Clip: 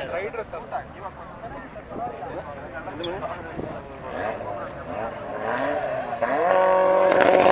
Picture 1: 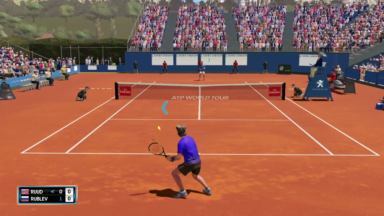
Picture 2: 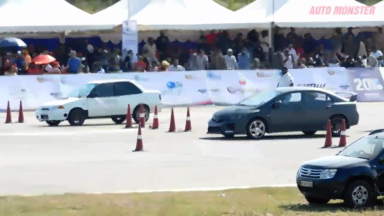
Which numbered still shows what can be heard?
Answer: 2